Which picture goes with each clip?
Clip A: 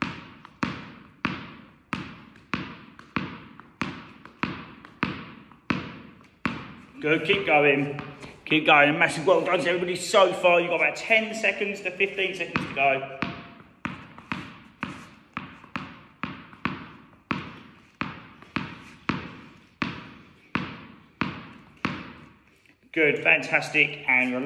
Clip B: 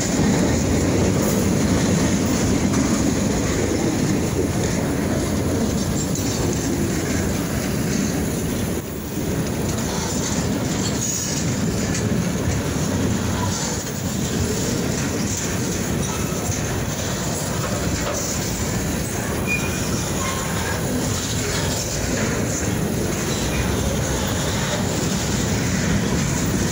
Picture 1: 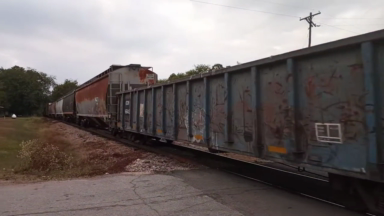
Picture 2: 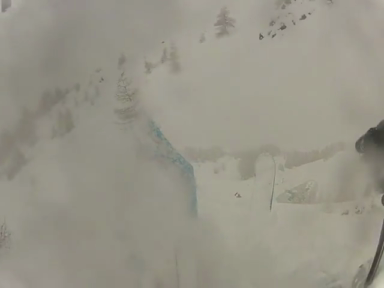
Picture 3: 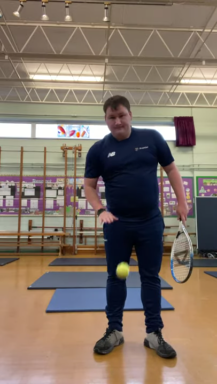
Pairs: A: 3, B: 1